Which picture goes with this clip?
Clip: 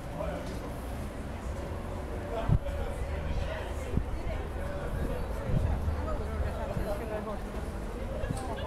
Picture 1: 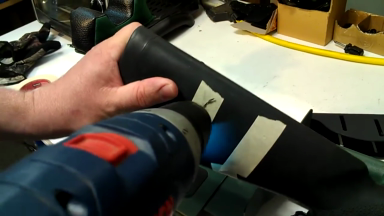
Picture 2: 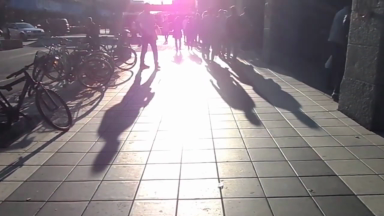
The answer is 2